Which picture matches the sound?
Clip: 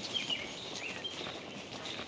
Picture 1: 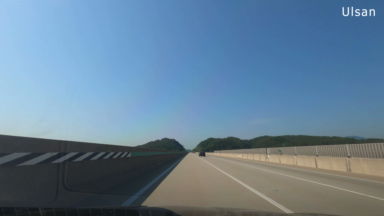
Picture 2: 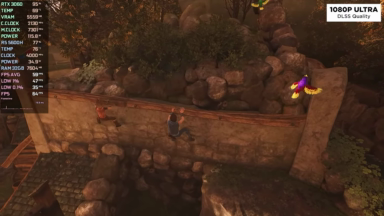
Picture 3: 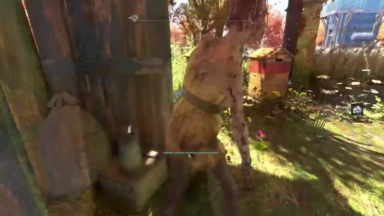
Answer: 2